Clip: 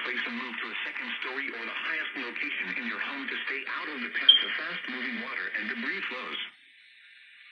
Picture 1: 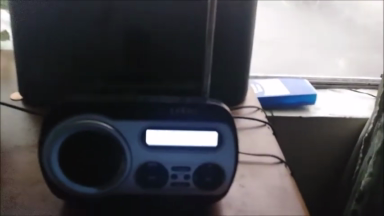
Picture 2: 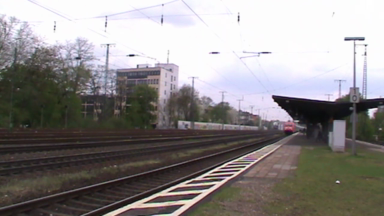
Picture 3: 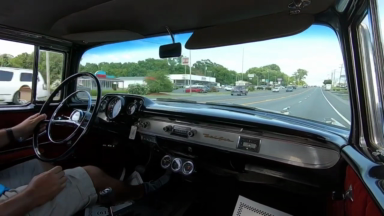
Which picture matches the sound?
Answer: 1